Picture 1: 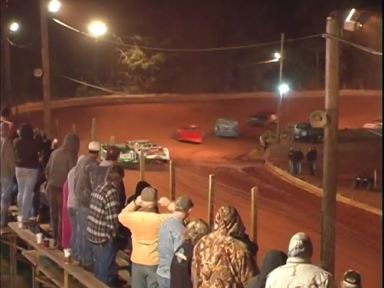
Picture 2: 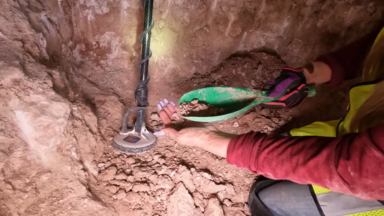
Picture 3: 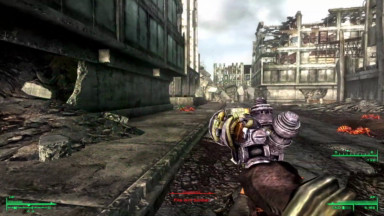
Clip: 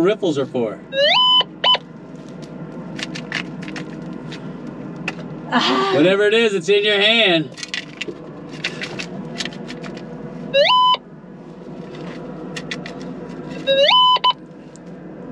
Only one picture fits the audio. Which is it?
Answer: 2